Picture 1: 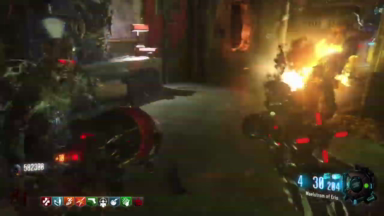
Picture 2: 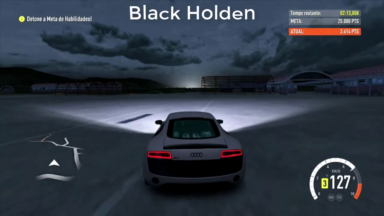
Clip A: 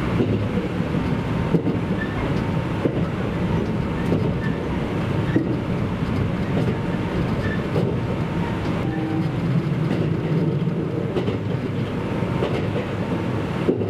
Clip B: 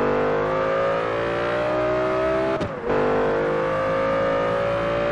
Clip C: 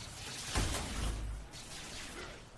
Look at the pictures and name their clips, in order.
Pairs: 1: C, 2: B